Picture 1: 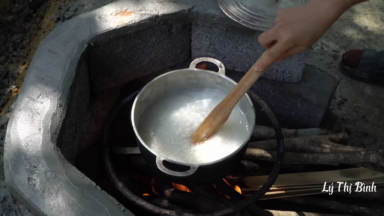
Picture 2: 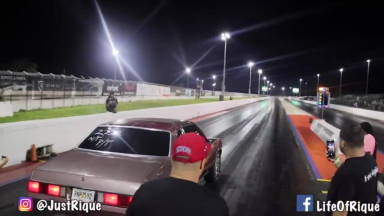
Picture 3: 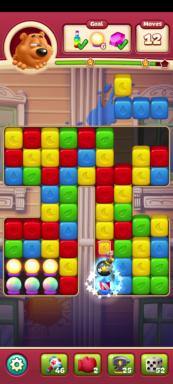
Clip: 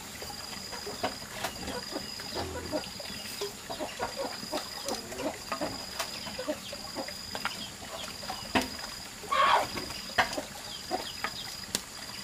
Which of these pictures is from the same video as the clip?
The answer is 1